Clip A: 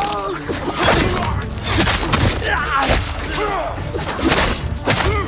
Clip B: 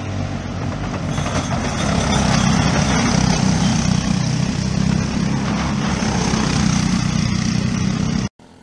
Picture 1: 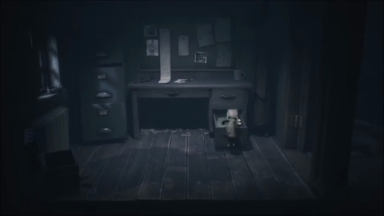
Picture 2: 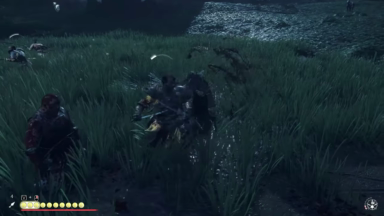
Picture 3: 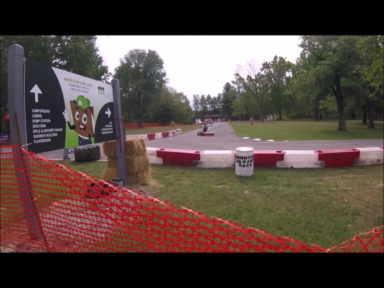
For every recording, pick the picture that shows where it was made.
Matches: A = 2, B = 3